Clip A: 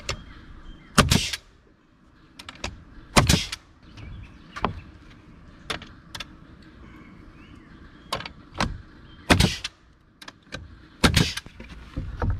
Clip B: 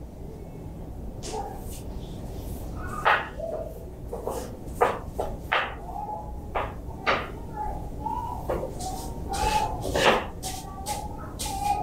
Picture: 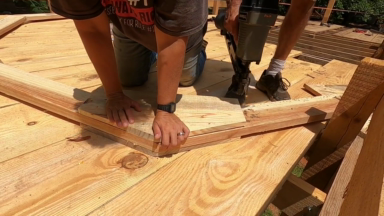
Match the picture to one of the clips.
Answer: A